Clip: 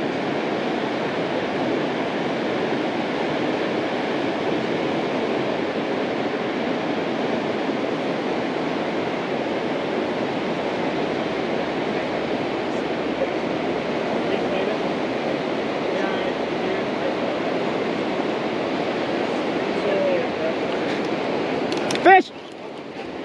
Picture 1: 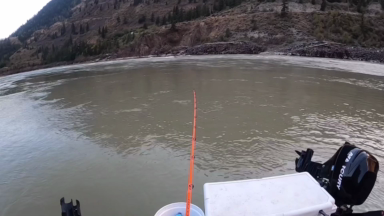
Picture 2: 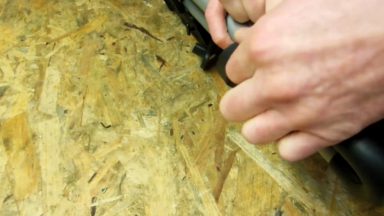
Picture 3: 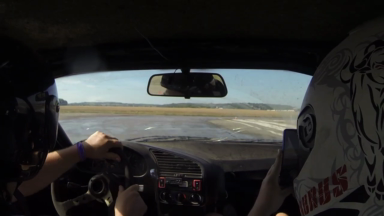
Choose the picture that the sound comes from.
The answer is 1